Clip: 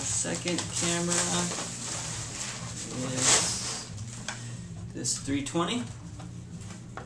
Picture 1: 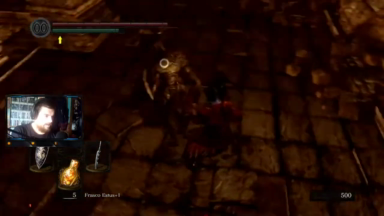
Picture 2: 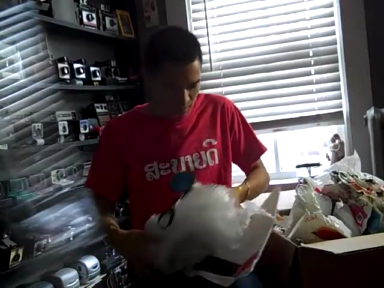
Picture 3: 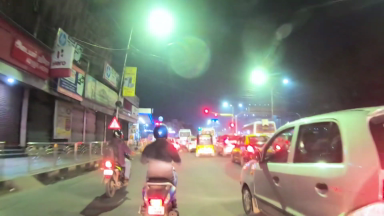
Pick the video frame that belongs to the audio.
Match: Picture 2